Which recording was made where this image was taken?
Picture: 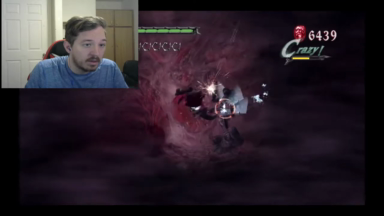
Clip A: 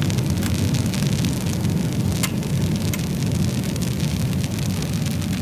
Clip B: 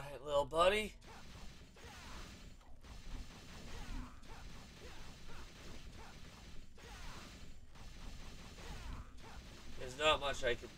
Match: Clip B